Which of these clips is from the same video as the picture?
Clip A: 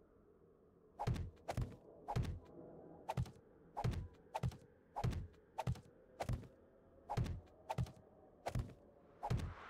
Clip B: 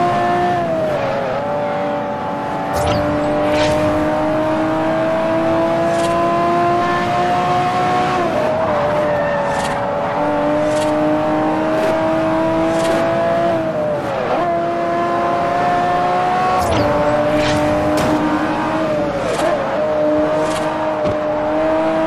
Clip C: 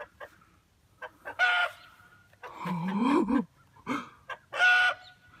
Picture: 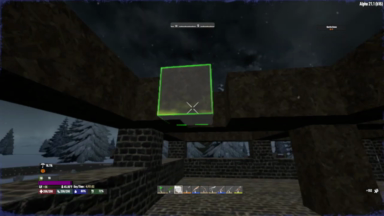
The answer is A